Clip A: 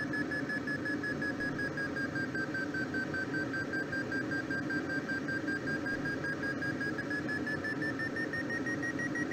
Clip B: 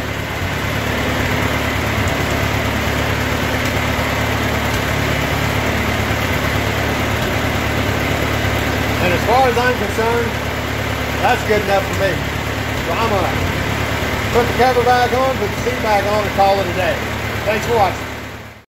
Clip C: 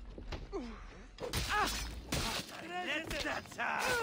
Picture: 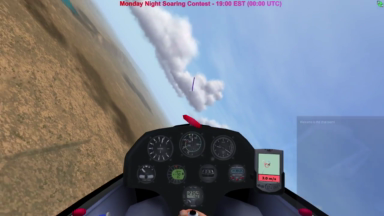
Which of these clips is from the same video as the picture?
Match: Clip A